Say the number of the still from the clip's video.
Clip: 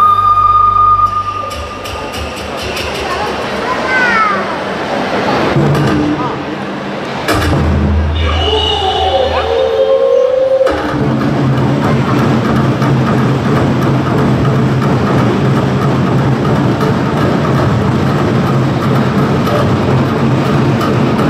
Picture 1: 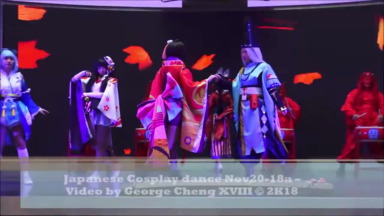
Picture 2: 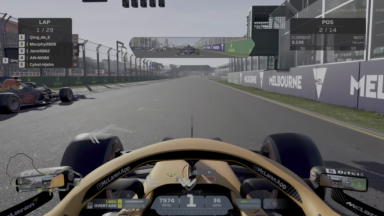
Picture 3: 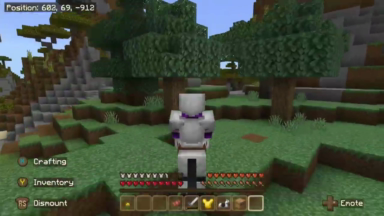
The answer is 1